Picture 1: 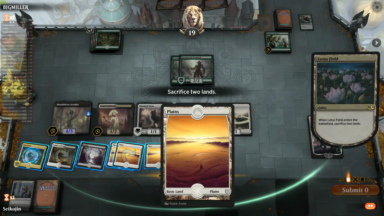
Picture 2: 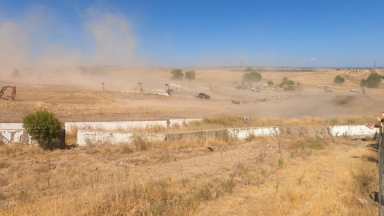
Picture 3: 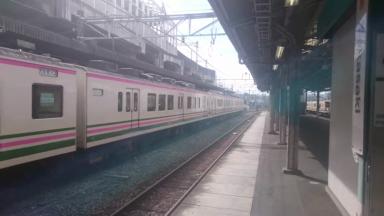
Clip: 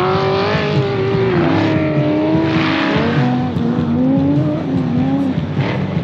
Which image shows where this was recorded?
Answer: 2